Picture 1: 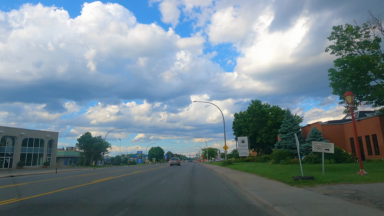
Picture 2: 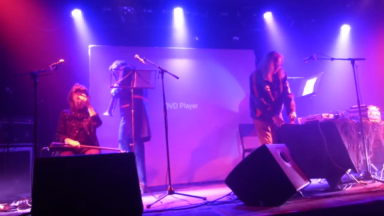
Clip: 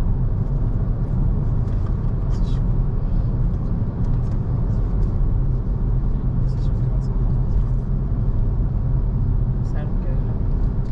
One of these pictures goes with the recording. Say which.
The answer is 1